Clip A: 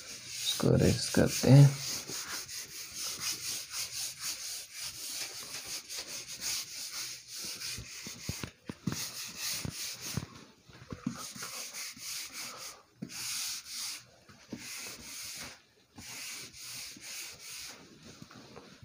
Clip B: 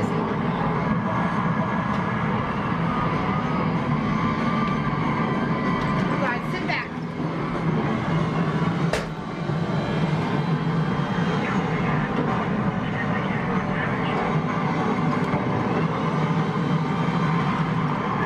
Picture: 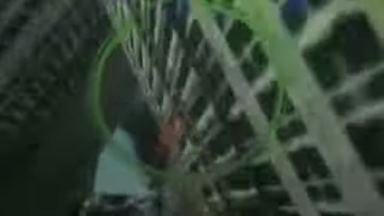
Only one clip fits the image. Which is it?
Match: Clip B